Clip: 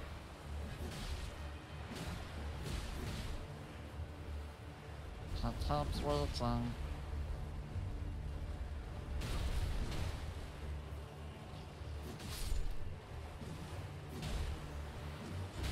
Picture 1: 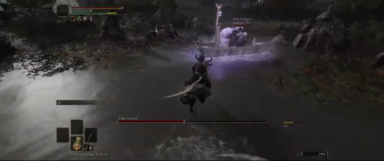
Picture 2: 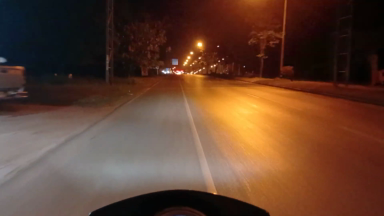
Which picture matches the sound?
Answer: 1